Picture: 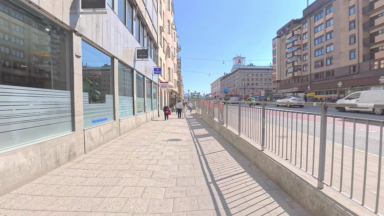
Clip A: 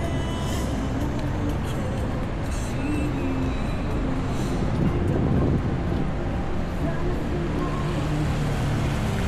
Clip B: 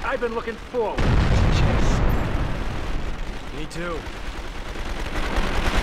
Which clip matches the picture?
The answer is A